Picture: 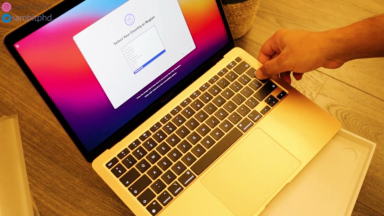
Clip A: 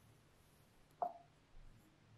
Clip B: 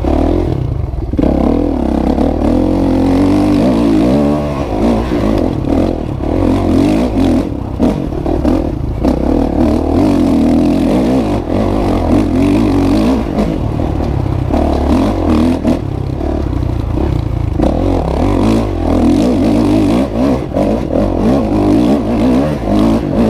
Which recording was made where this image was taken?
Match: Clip A